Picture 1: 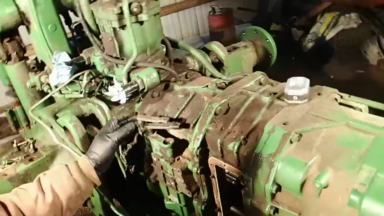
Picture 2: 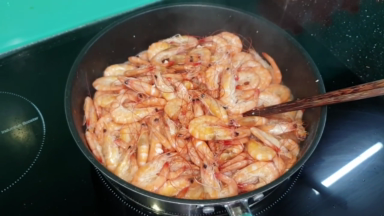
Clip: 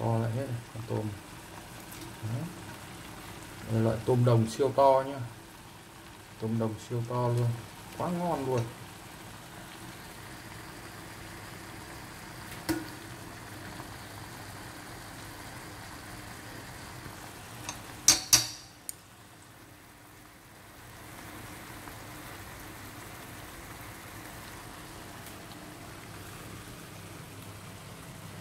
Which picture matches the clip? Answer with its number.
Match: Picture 2